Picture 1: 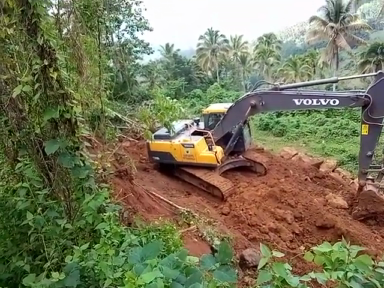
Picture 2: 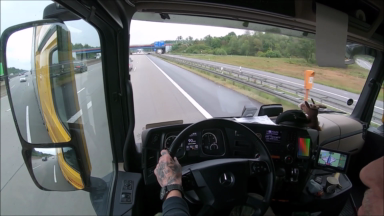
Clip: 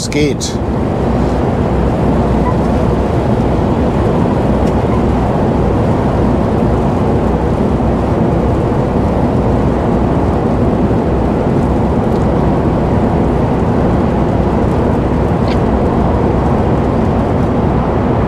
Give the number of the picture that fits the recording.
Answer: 2